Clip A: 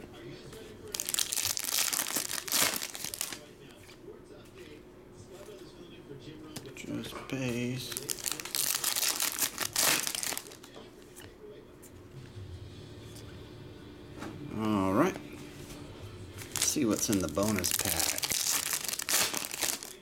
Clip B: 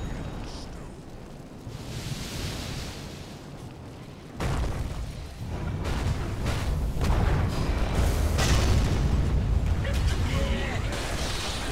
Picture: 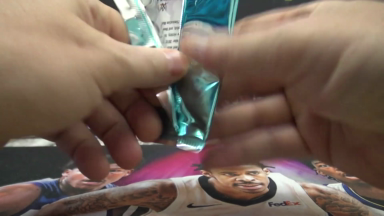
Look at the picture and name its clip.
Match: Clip A